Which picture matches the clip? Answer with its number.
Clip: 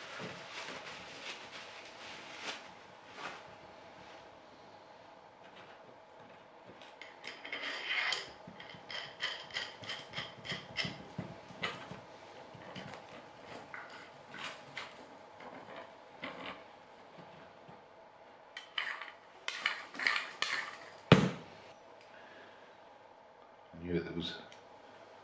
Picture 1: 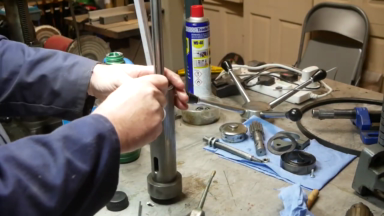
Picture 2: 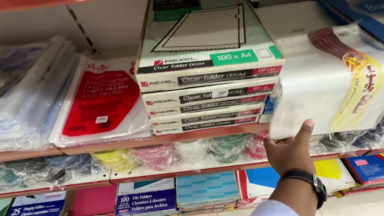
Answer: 1